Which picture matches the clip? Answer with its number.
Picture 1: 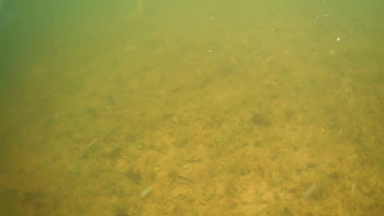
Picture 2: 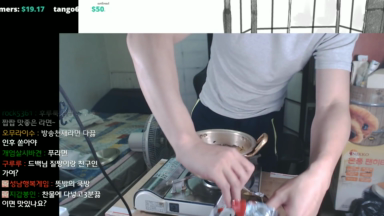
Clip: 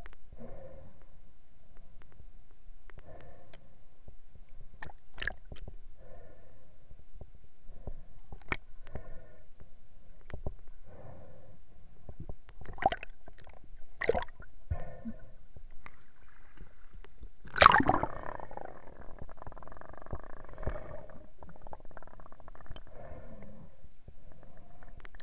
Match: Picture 1